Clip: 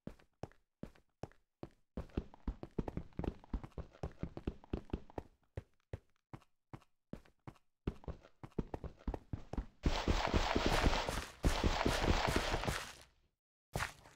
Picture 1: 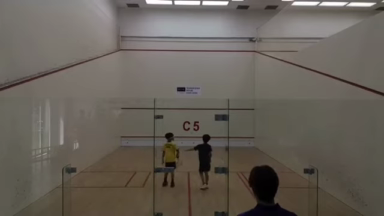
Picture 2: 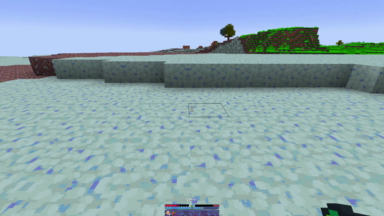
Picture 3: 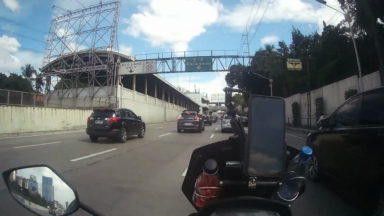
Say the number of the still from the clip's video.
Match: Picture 2